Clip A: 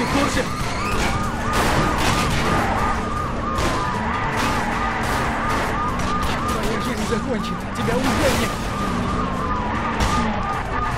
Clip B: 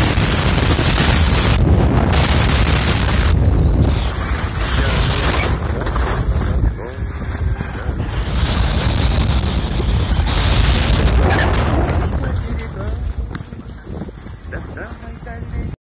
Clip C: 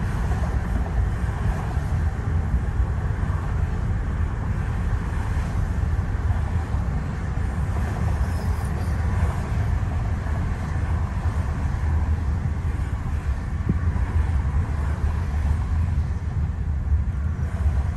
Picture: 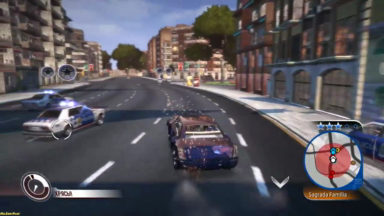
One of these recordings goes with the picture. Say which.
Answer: A